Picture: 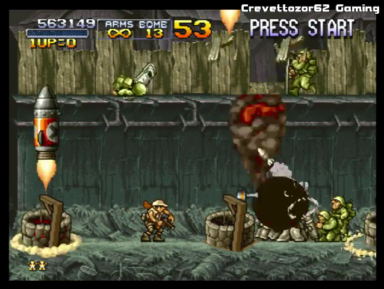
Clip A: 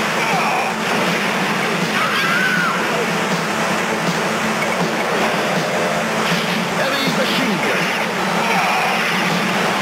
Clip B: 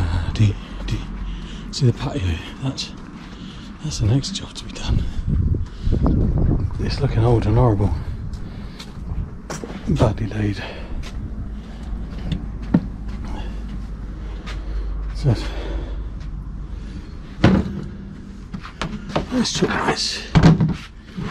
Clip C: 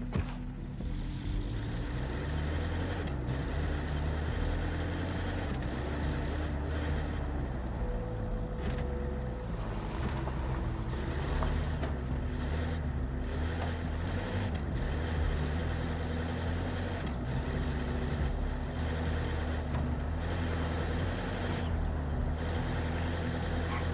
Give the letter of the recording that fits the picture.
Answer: A